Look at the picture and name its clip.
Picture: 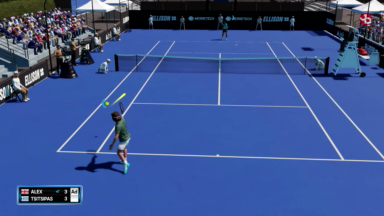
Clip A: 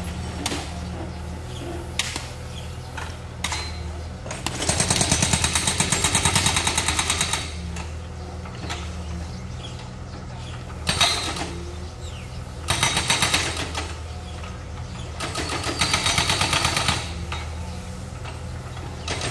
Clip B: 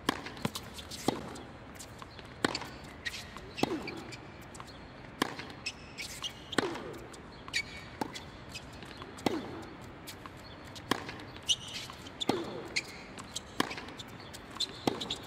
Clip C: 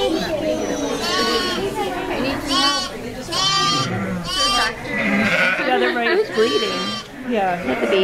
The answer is B